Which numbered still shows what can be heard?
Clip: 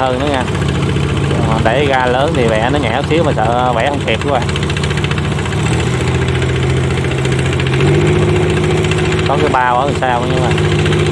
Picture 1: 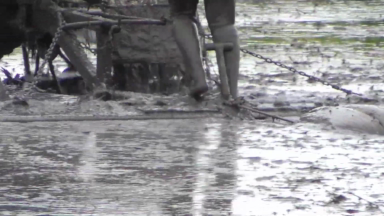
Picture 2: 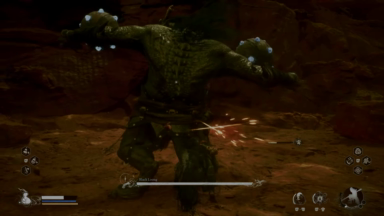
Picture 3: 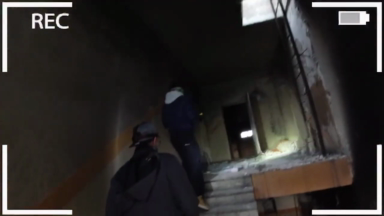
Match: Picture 1